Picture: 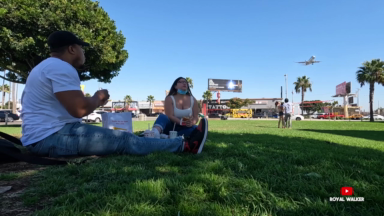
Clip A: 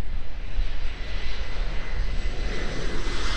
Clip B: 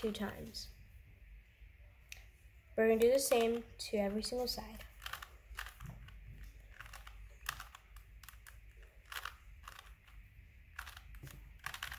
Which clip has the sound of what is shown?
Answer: A